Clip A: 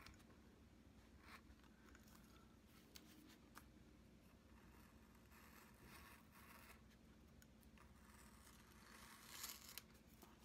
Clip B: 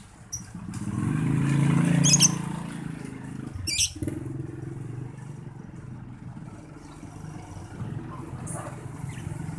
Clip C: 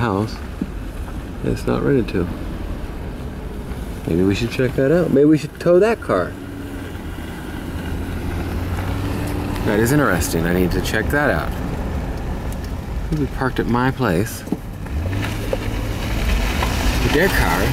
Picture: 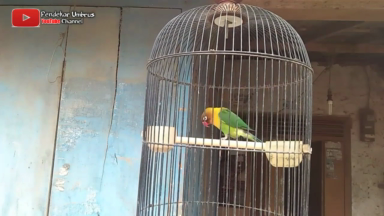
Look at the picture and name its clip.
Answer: B